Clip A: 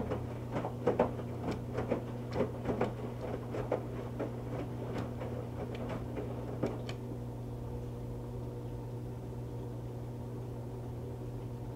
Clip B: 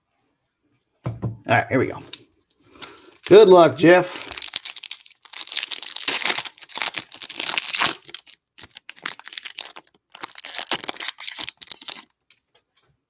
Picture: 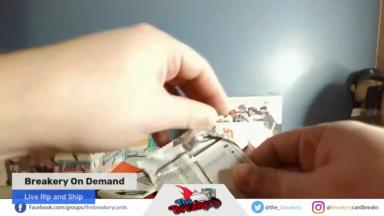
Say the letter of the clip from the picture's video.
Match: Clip B